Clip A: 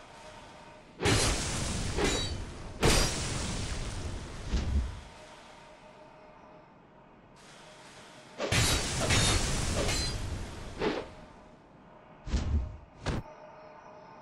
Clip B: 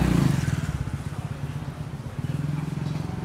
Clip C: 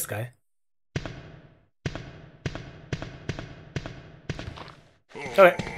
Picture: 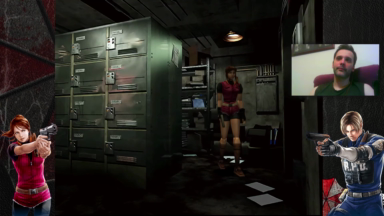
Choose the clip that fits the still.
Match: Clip C